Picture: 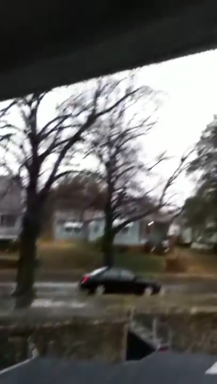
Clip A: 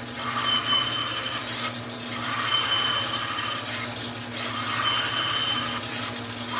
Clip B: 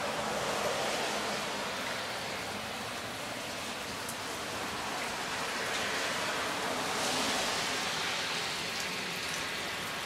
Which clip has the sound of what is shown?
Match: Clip B